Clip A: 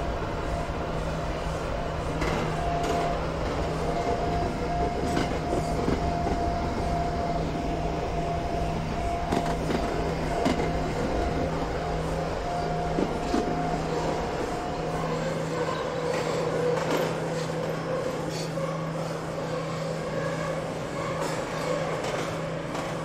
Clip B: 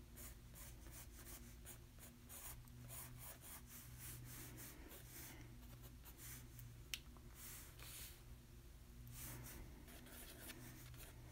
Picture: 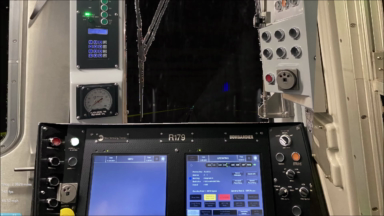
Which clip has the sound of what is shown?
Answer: A